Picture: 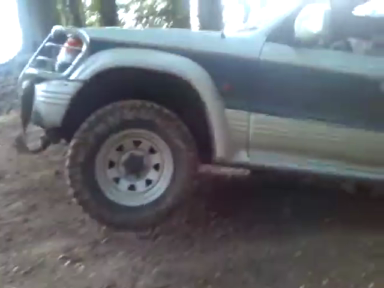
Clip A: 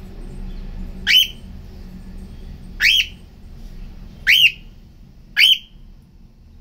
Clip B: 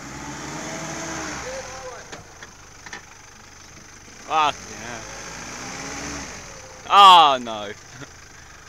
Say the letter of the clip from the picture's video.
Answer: B